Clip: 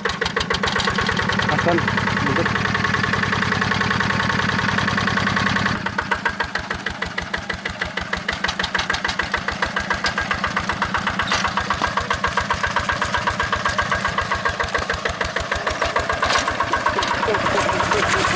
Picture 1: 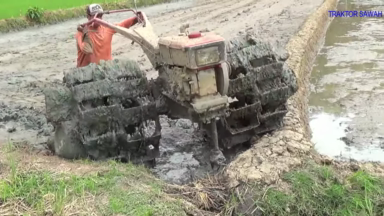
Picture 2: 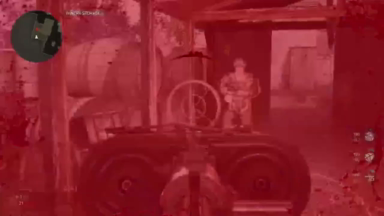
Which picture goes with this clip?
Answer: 1